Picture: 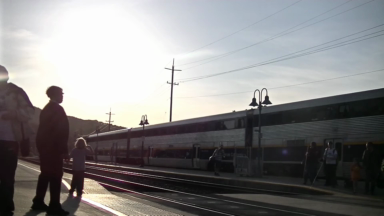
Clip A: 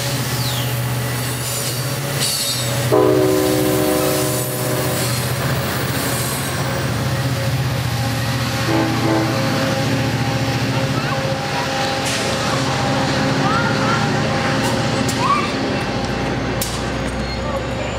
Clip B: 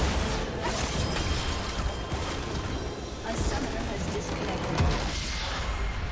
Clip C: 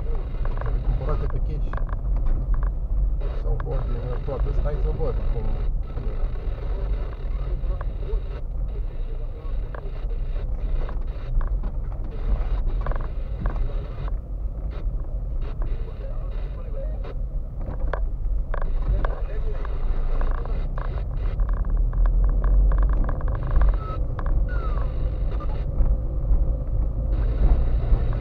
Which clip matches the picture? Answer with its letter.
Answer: A